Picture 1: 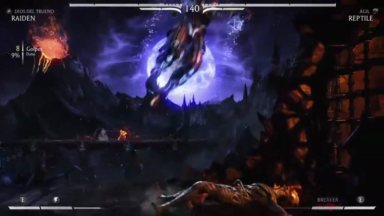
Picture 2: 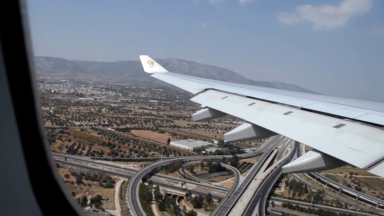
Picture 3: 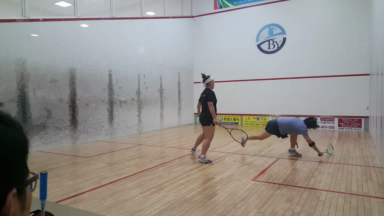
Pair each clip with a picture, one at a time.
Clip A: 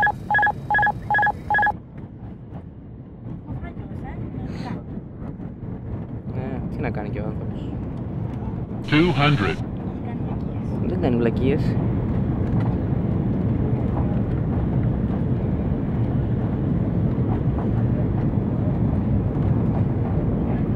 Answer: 2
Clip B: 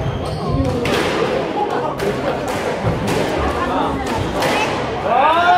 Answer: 3